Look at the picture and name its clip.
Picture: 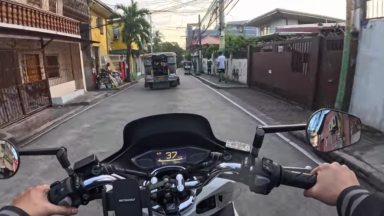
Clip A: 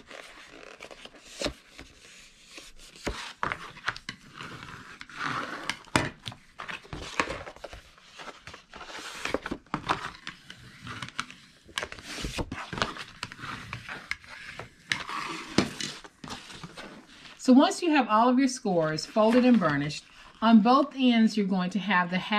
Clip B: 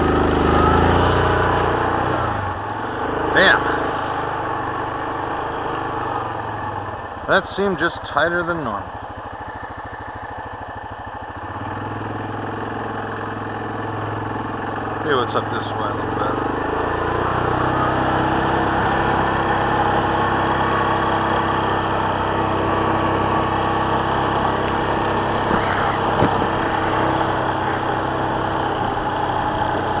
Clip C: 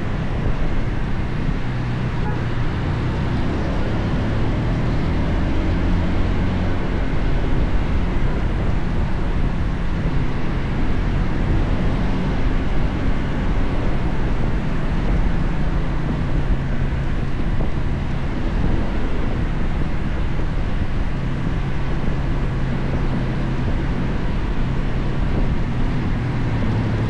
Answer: C